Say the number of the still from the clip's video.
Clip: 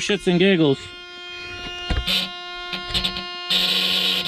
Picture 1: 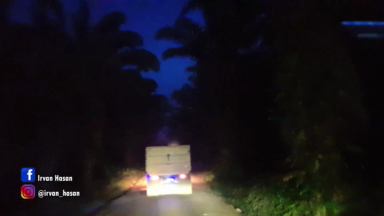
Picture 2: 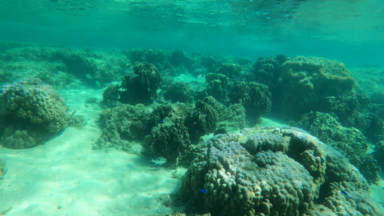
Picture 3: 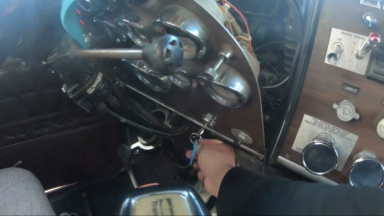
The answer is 3